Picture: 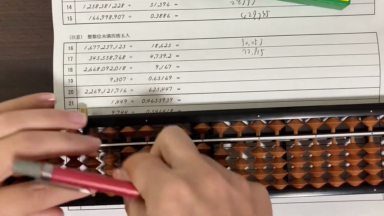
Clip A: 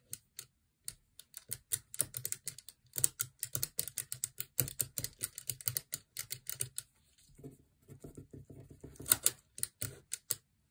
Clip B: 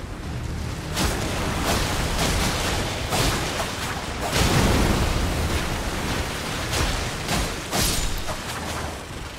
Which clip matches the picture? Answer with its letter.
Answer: A